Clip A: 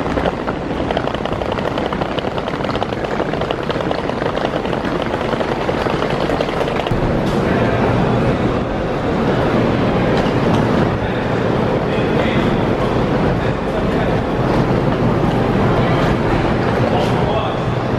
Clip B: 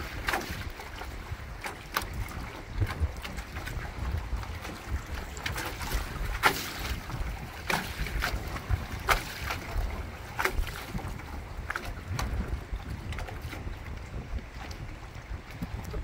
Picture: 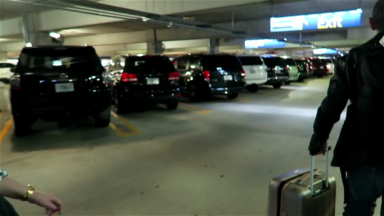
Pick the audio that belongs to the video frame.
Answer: A